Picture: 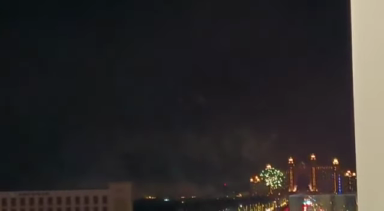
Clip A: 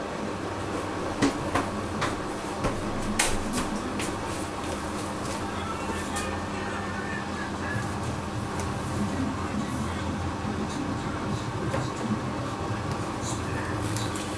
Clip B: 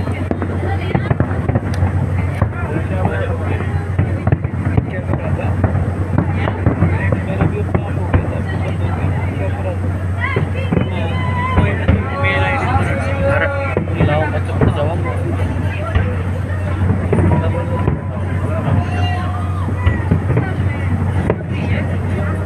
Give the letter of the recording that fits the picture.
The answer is B